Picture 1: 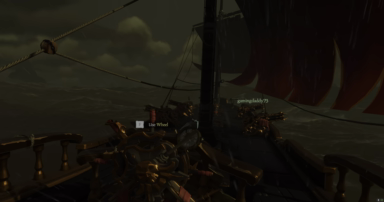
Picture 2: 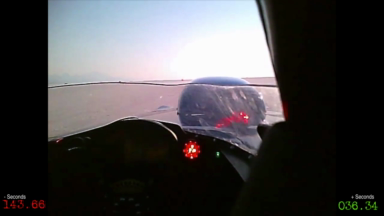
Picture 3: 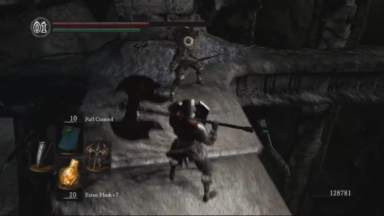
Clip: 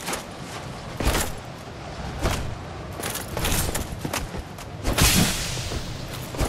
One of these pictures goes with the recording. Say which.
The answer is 3